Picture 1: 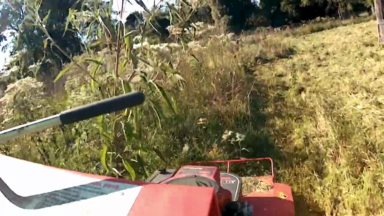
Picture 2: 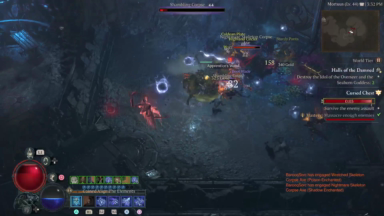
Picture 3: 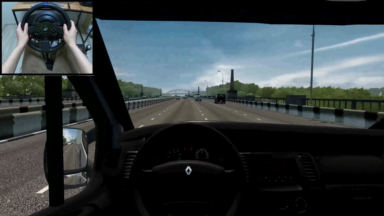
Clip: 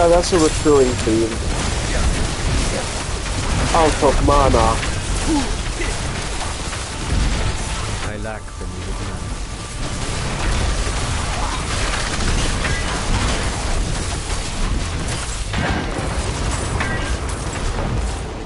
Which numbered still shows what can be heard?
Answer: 2